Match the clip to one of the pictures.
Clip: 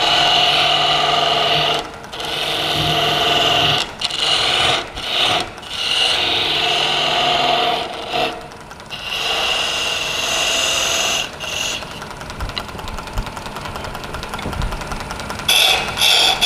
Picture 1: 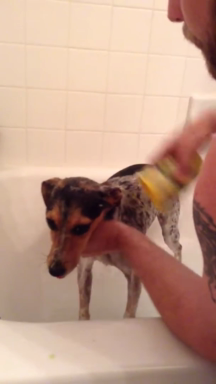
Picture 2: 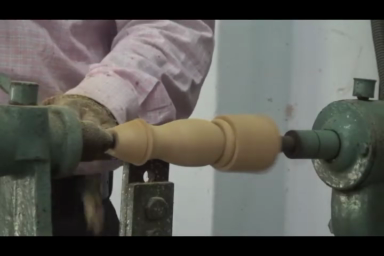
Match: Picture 2